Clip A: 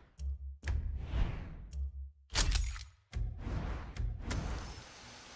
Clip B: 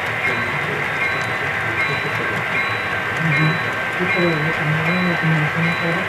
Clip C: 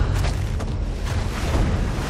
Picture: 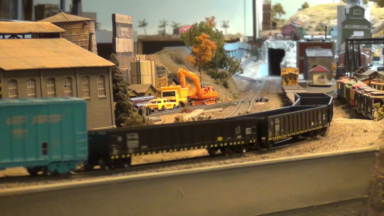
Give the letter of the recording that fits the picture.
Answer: B